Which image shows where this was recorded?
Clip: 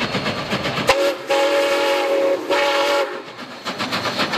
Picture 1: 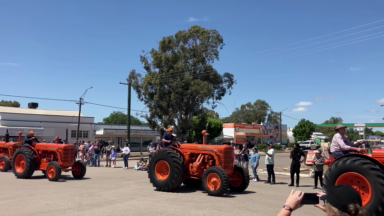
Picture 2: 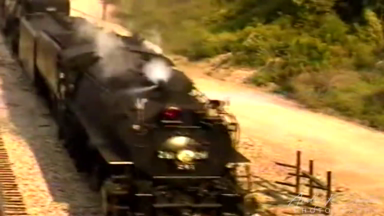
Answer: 2